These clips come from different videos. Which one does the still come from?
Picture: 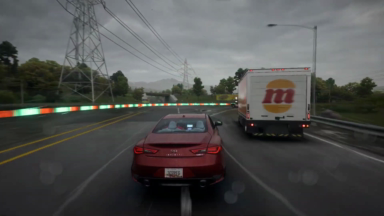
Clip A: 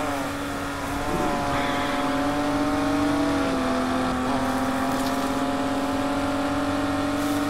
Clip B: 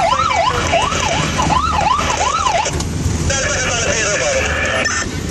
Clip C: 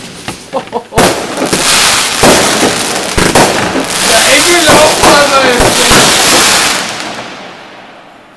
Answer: A